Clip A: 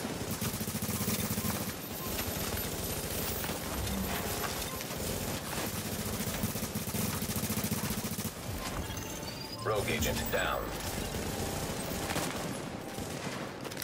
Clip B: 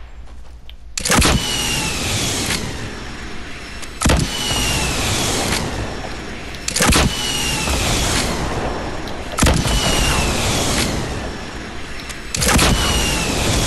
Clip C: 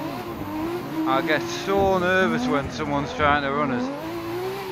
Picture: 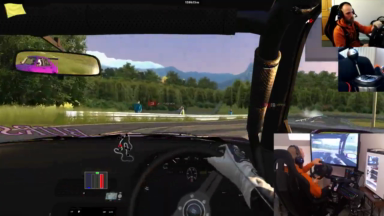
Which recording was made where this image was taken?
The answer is C